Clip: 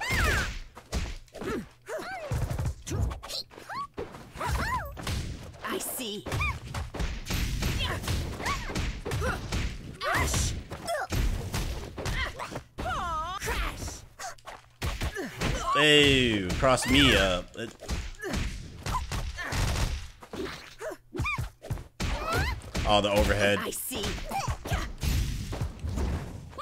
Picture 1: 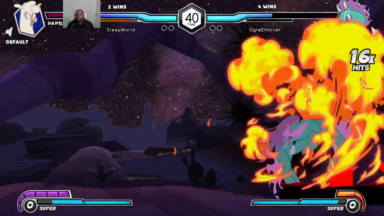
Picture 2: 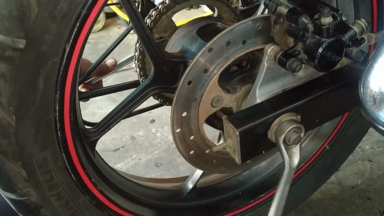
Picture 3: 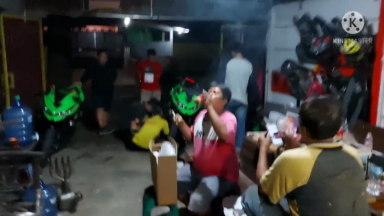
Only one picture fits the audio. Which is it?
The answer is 1